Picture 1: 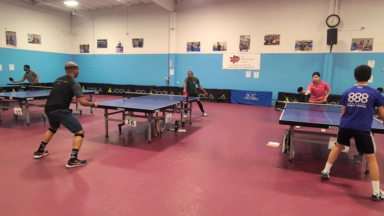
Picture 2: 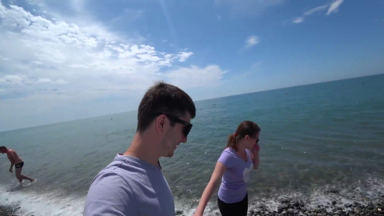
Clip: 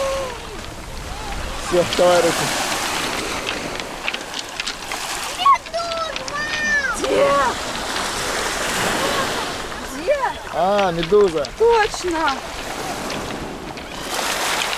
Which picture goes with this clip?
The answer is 2